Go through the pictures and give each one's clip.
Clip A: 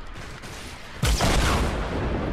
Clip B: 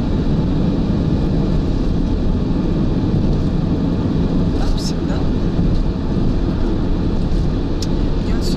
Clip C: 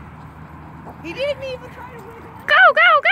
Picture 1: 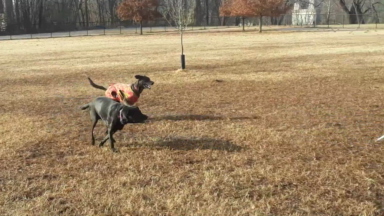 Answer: C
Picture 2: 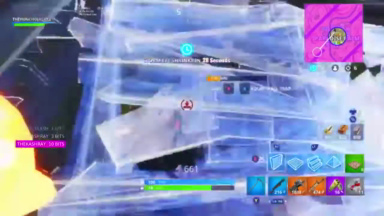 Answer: A